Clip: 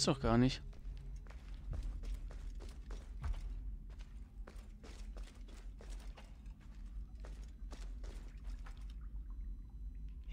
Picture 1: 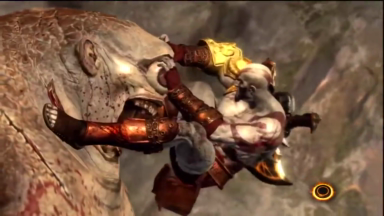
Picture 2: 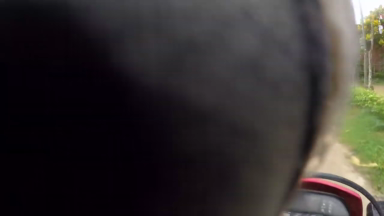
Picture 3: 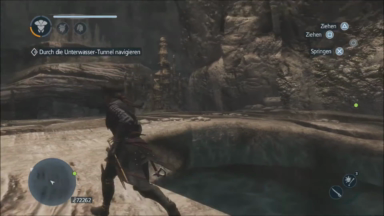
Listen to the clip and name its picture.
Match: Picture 3